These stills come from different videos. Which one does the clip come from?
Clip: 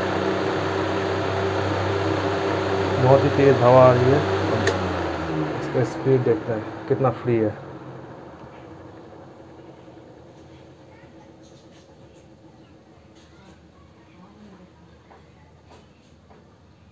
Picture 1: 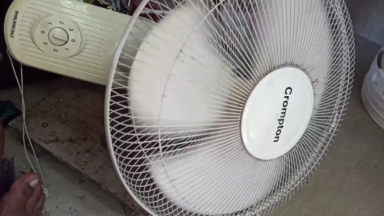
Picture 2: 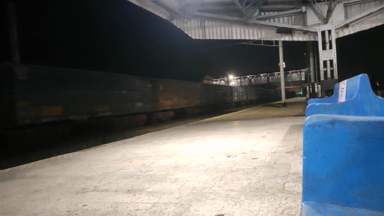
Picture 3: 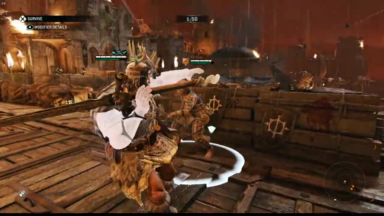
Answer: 1